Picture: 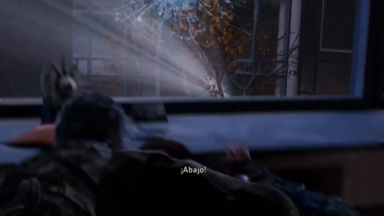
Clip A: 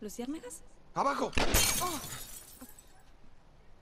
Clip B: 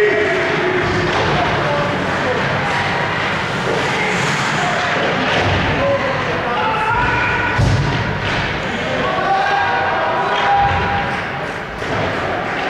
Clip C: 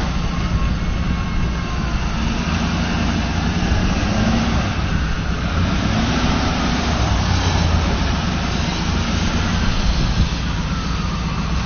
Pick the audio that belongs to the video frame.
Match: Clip A